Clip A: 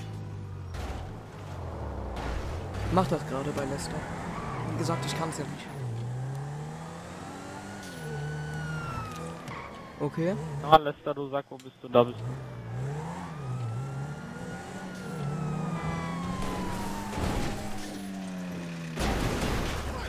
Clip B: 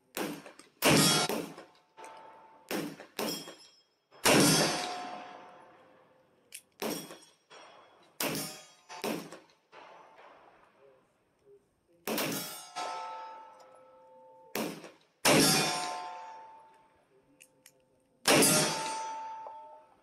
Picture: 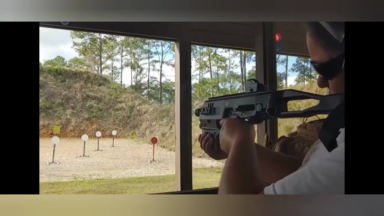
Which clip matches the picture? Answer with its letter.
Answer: B